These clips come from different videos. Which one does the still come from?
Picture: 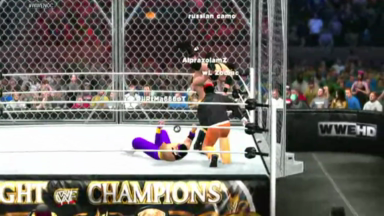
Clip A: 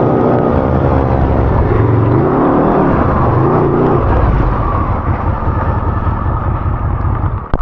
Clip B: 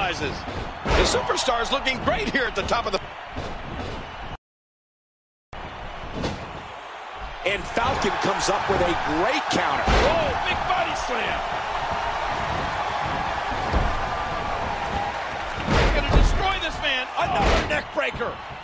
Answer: B